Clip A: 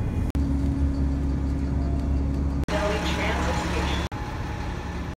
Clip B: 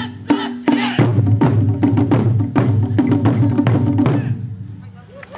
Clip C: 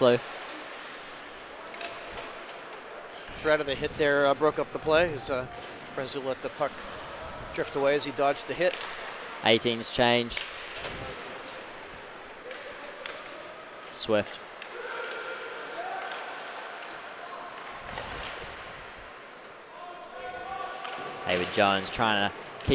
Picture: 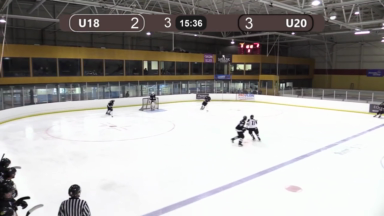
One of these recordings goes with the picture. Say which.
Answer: C